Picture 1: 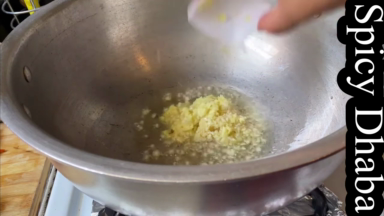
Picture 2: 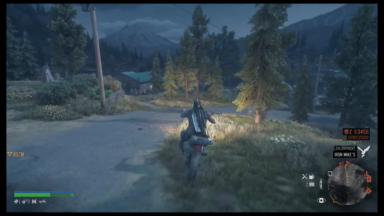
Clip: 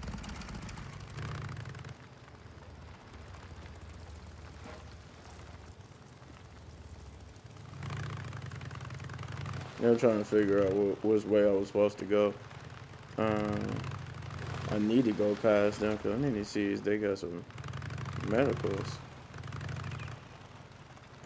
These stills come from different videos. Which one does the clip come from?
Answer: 2